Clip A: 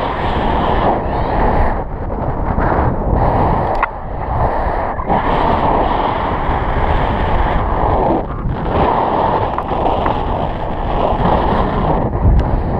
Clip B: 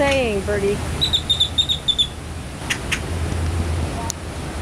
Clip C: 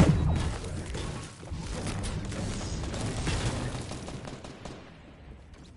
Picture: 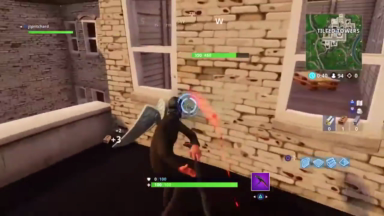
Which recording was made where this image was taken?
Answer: C